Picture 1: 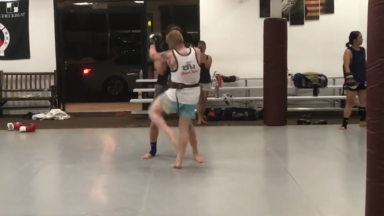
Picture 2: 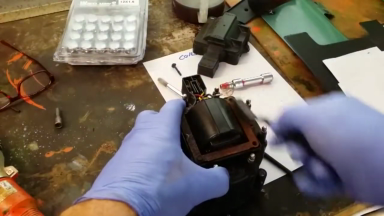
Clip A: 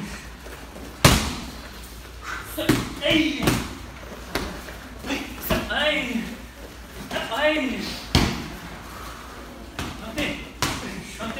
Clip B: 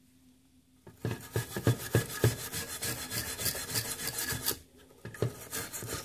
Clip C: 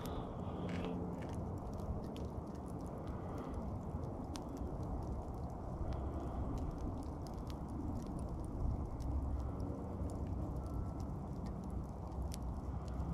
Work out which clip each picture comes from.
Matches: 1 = A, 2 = B